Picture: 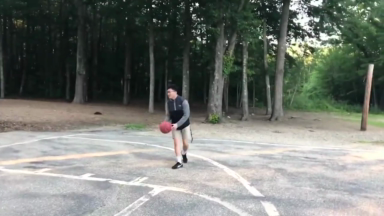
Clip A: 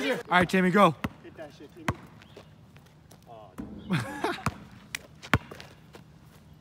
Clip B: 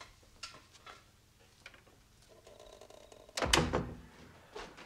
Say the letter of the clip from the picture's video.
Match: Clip A